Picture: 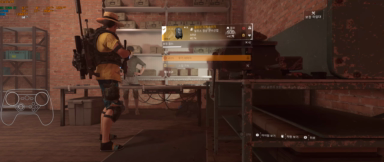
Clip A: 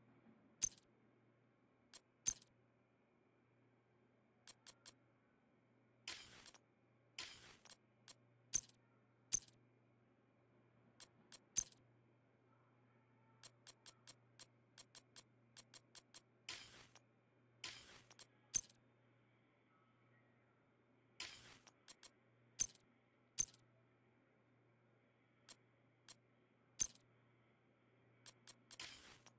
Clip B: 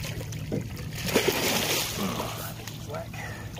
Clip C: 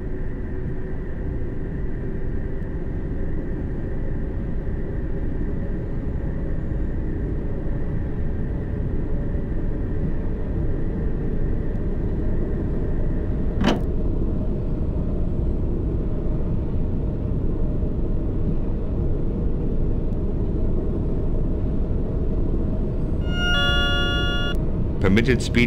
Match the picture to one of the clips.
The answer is A